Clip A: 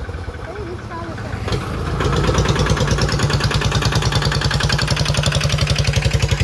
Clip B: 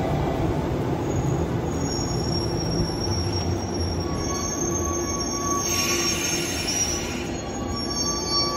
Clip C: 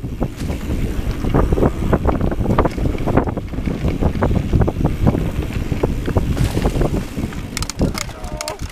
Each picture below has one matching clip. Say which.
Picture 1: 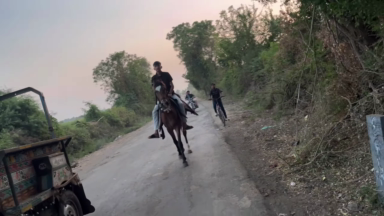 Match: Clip A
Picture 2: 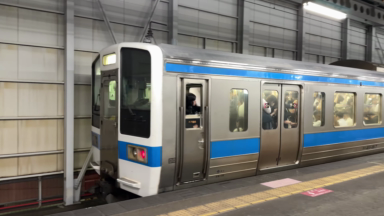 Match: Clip B